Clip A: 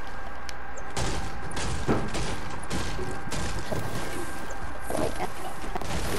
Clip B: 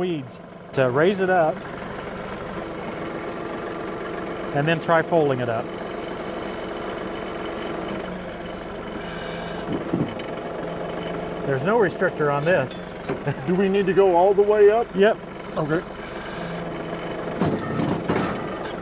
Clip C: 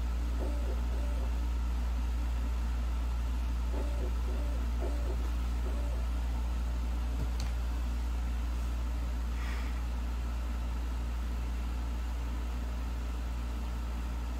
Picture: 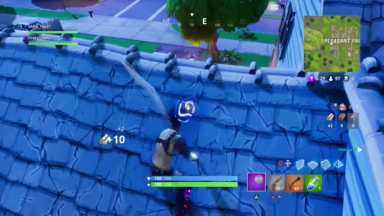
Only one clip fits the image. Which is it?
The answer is A